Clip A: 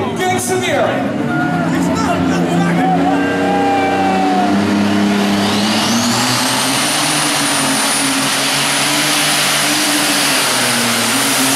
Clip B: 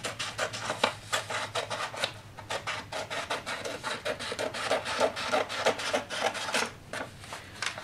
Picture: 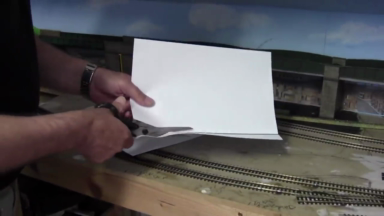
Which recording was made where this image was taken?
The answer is B